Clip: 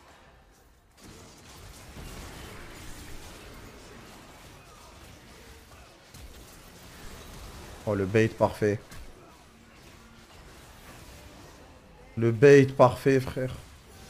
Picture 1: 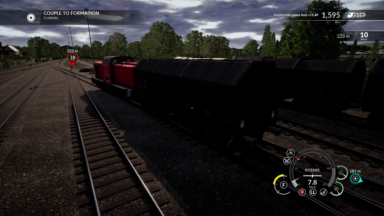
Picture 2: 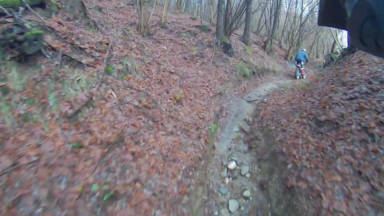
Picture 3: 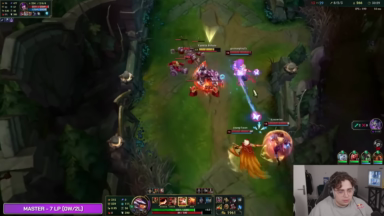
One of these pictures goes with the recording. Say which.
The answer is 3